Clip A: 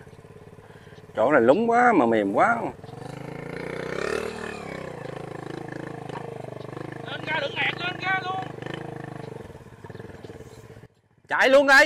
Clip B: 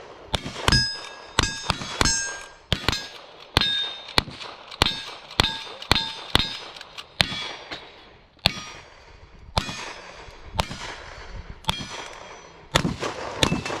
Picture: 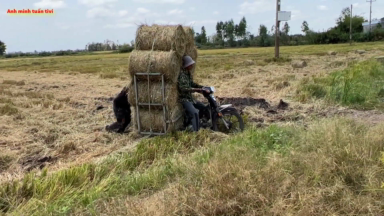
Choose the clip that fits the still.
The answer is A